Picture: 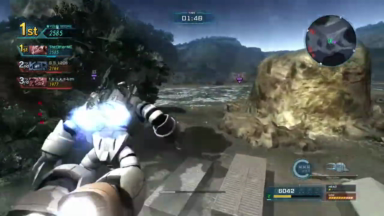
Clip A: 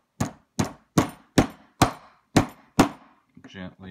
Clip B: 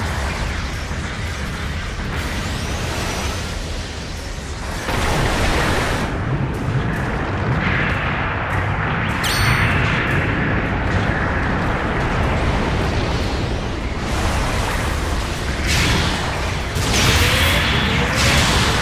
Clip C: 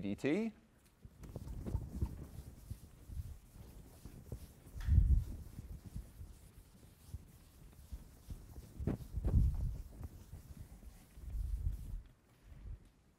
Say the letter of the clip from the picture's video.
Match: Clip B